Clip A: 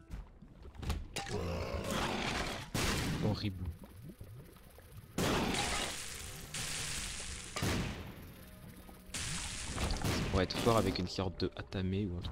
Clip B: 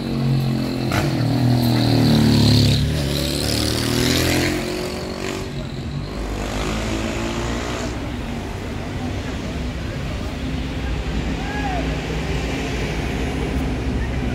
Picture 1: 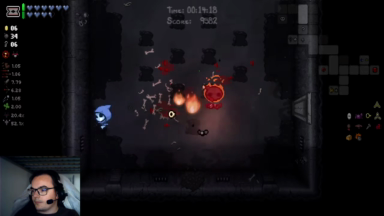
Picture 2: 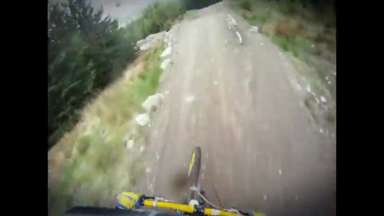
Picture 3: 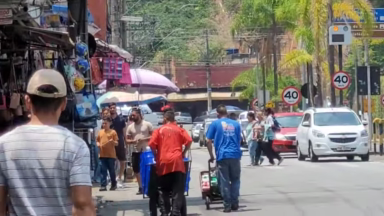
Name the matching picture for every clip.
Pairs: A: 1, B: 3